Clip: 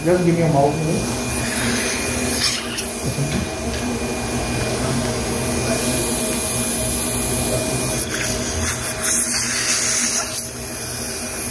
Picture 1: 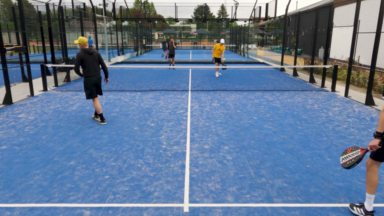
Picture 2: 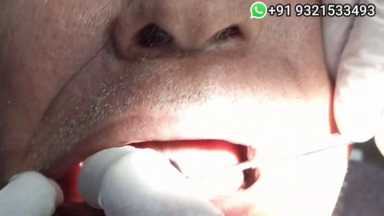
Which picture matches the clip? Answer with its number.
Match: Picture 2